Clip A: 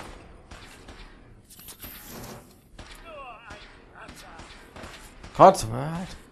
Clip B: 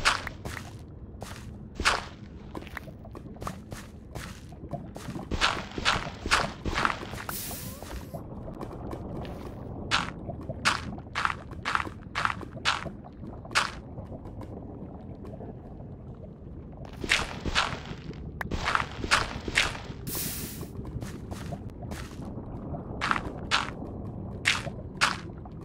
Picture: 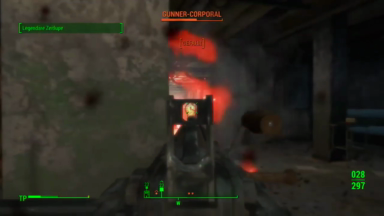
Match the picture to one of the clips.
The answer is A